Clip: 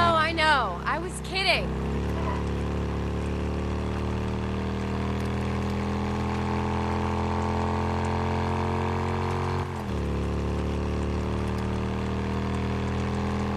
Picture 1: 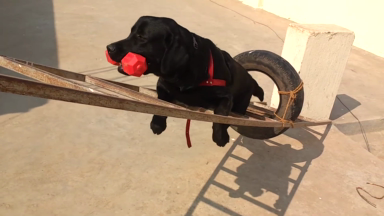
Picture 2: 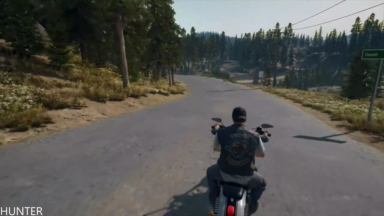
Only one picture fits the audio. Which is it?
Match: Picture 2